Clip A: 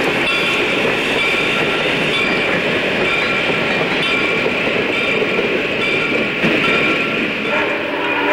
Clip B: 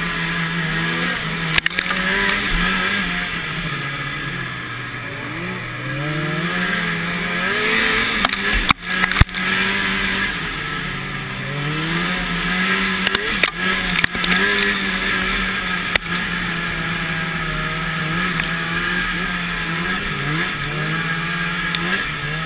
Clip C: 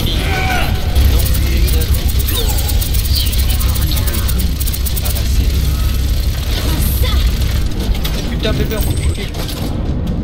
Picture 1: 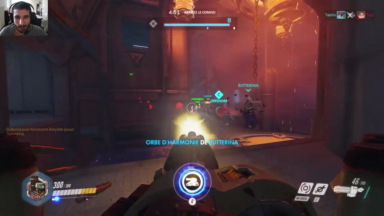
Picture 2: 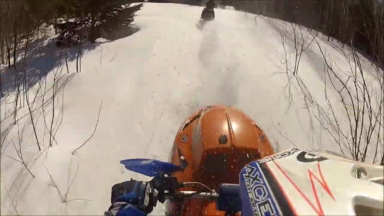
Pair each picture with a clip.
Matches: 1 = C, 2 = B